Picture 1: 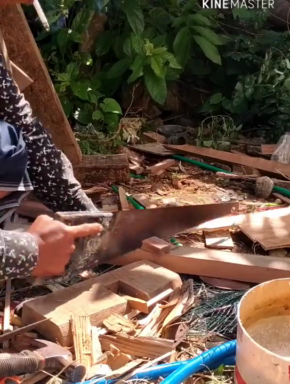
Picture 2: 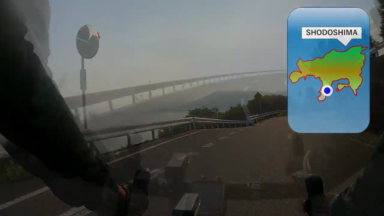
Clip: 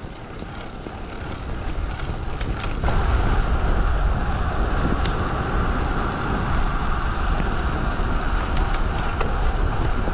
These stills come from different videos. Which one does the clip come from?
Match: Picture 2